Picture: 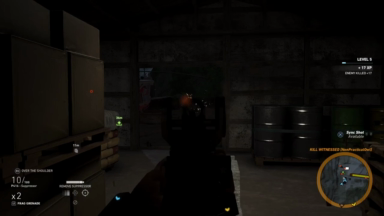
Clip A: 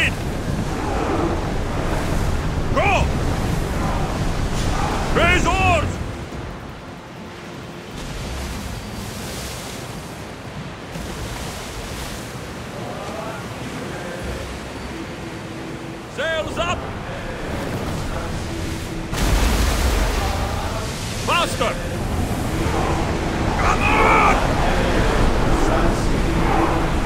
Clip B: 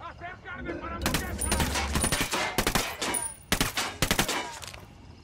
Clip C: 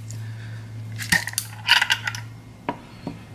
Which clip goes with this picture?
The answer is B